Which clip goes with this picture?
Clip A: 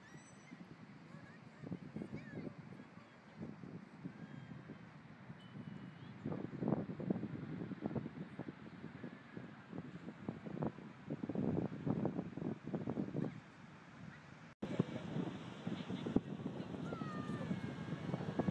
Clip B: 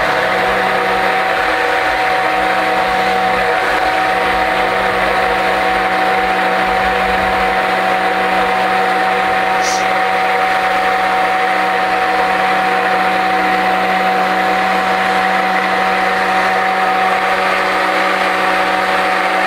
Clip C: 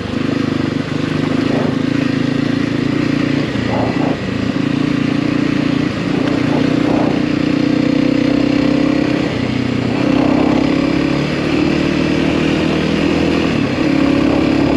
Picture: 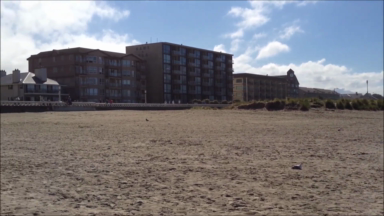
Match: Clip A